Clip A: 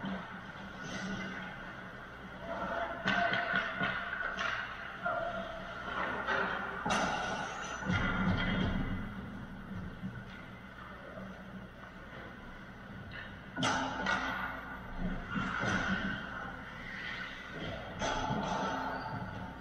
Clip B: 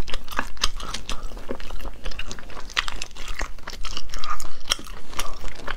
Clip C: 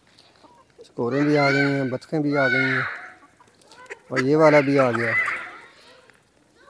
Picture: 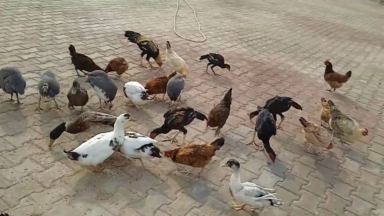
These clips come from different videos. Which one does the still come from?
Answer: C